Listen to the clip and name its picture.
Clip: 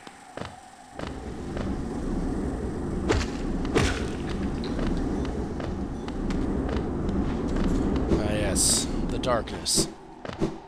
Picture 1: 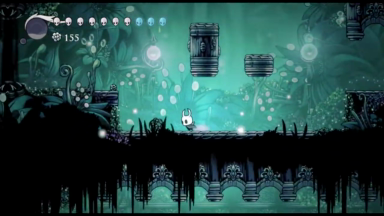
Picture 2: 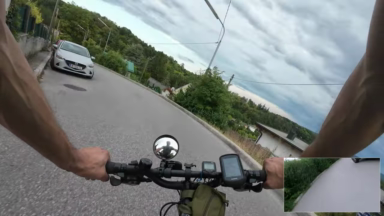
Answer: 1